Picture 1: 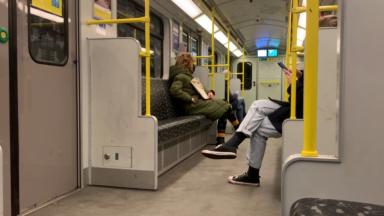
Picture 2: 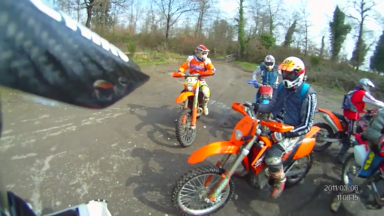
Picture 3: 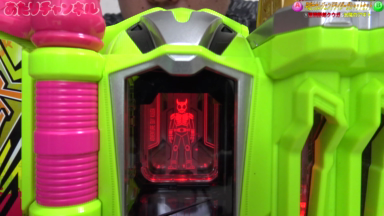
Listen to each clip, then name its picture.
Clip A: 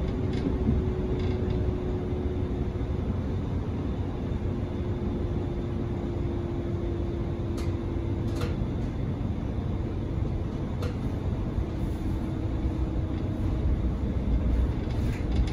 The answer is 1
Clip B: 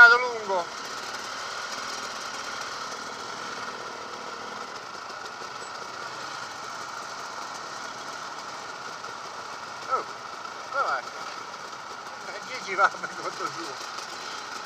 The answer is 2